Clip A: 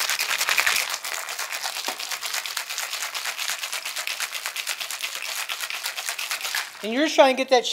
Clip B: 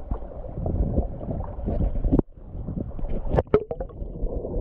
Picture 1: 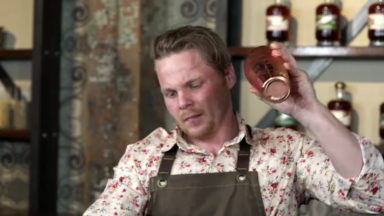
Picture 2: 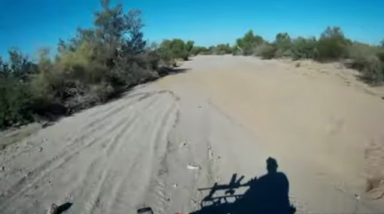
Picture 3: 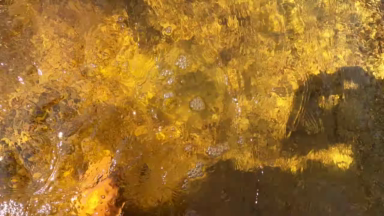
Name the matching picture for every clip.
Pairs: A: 1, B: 3